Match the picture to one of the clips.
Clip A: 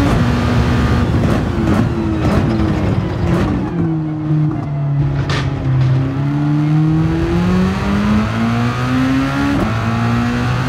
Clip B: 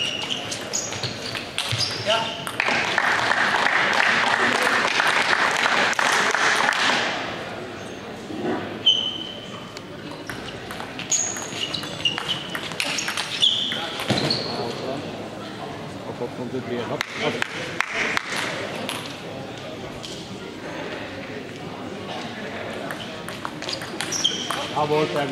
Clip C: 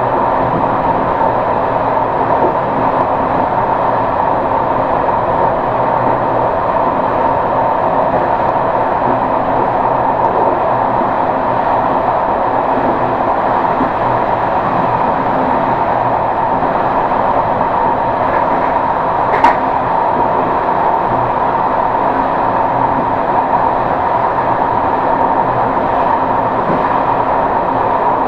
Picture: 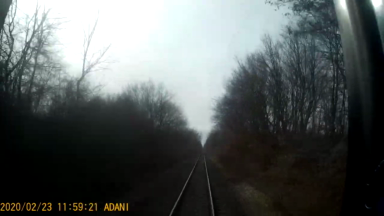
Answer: C